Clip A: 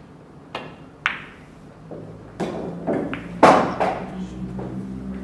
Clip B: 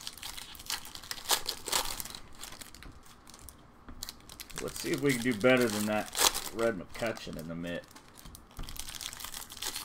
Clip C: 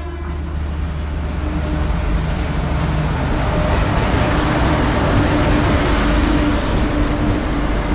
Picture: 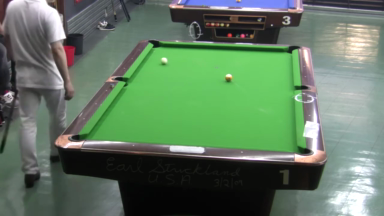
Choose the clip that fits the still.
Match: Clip A